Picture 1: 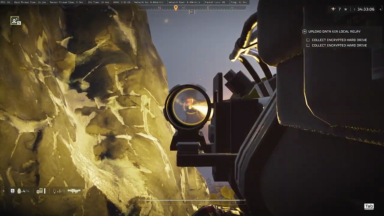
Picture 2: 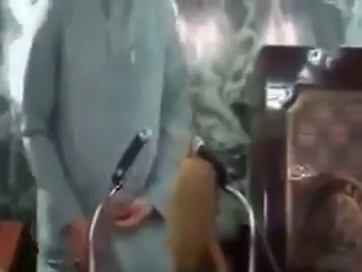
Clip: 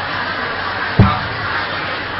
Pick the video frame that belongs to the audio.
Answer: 2